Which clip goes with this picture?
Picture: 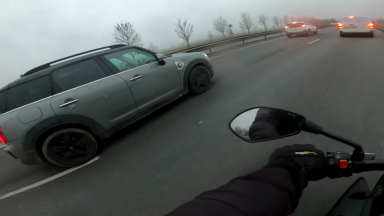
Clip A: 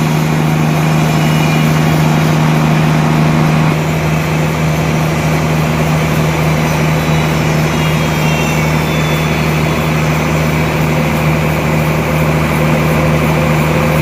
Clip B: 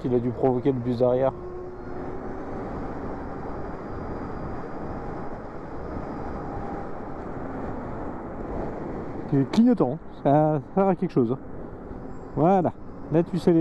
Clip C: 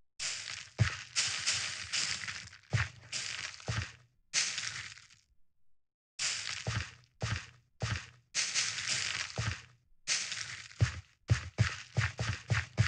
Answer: B